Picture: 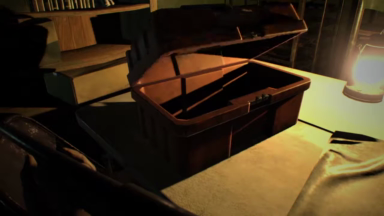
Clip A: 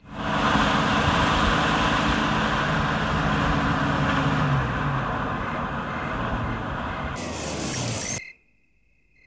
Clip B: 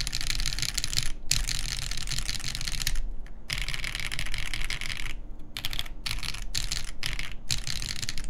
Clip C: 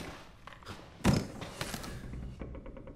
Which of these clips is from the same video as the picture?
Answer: C